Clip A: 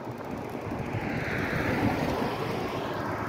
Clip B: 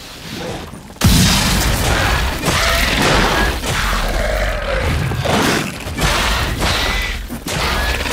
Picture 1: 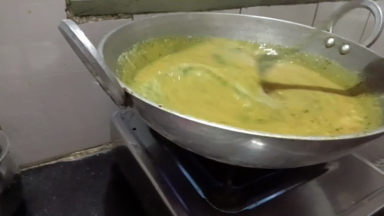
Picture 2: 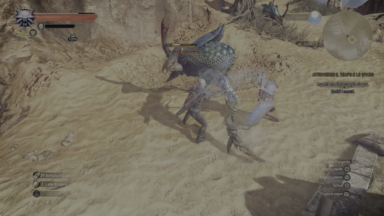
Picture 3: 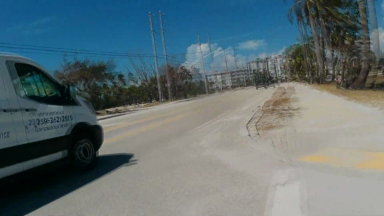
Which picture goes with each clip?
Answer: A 3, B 2